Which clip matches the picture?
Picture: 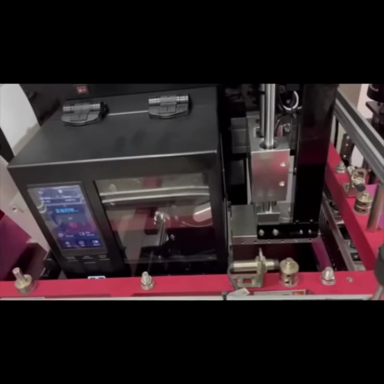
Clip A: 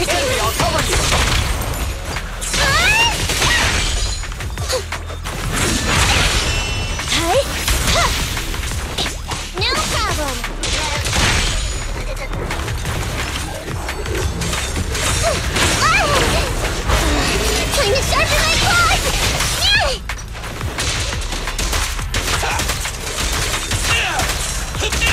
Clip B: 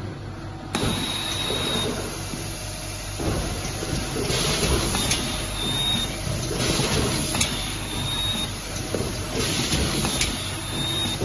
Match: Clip B